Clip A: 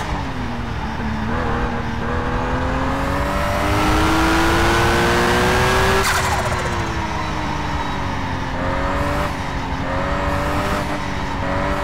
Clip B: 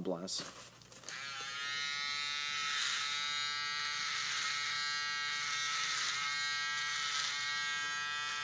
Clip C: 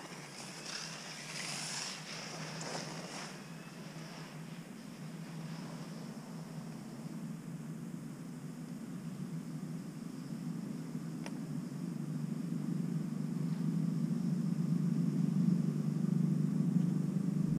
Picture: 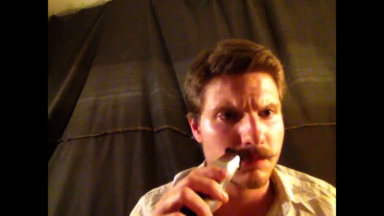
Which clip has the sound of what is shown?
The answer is B